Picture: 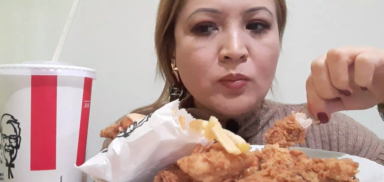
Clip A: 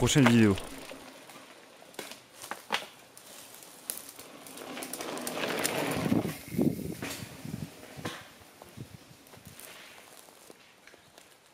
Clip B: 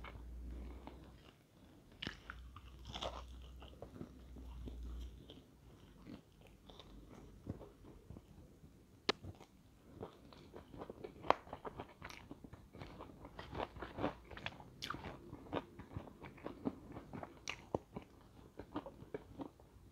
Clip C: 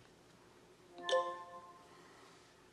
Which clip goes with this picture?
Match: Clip B